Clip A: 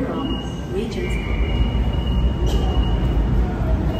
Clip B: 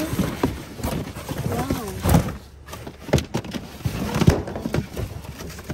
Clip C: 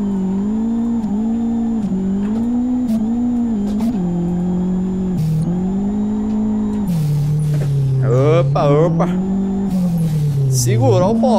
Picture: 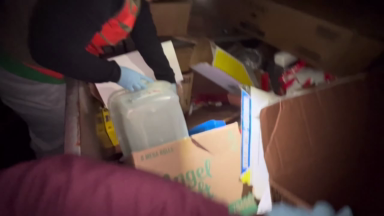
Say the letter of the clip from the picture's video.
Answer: B